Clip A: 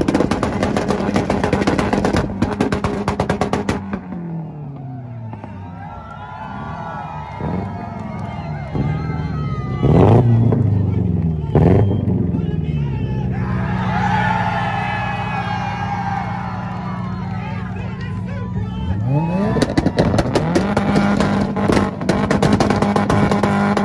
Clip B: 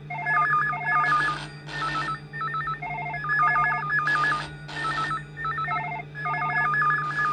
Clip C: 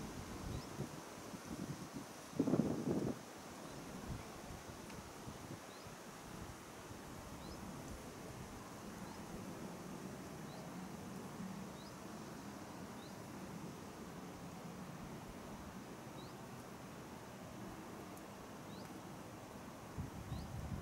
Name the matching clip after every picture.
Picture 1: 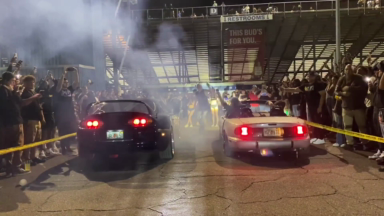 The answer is A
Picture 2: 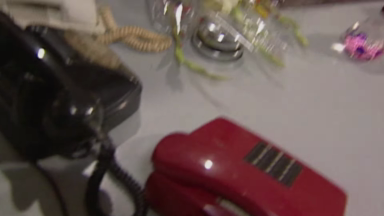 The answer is B